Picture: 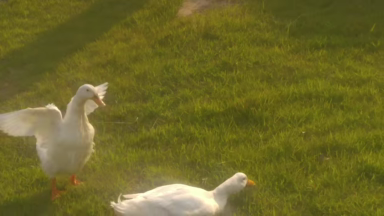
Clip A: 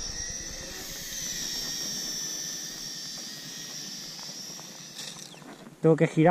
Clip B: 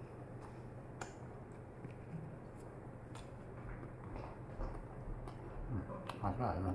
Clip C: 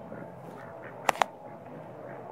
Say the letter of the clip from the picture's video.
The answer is C